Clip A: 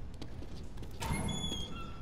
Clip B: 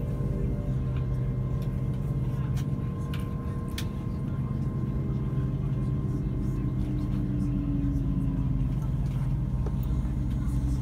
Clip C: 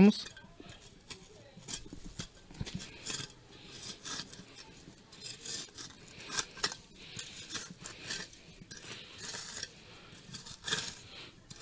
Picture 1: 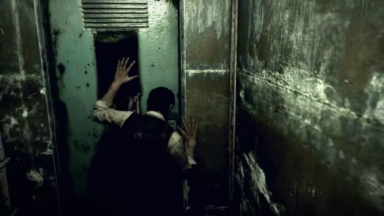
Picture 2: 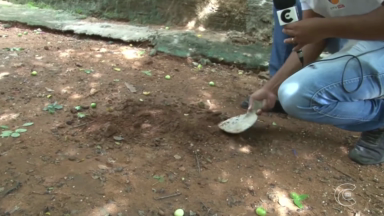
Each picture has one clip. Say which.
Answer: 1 A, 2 C